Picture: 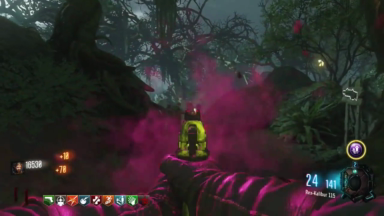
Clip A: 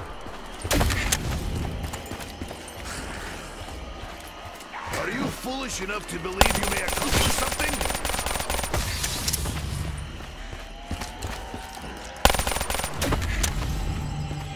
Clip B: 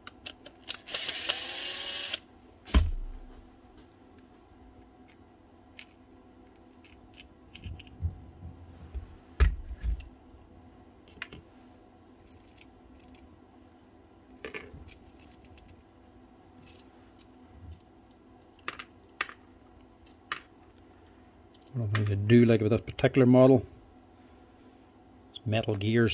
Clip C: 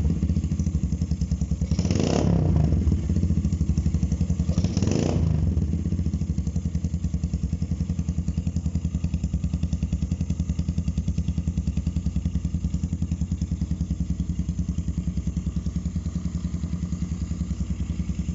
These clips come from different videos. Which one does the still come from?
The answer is A